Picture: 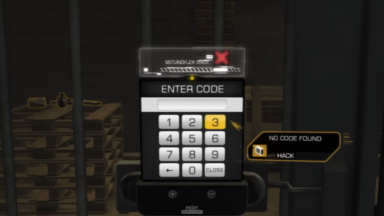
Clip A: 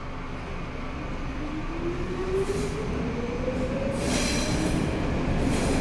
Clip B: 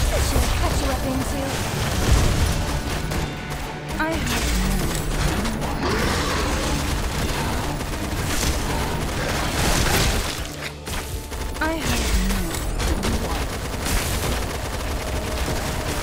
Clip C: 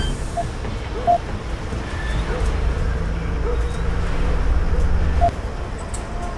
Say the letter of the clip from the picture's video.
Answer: C